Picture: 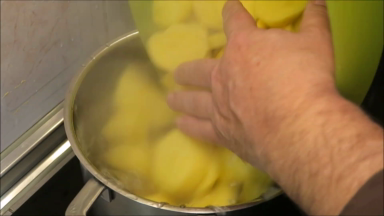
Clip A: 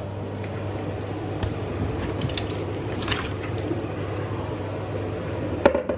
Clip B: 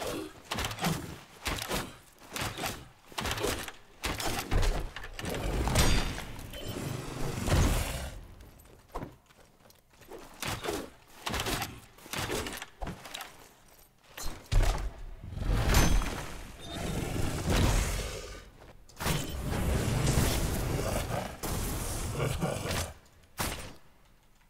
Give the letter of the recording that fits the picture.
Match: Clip A